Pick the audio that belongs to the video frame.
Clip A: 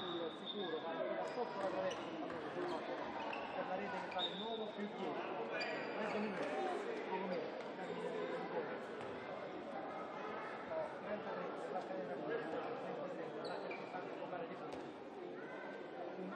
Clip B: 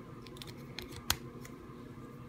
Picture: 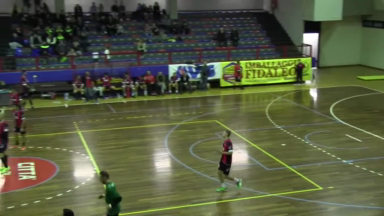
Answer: A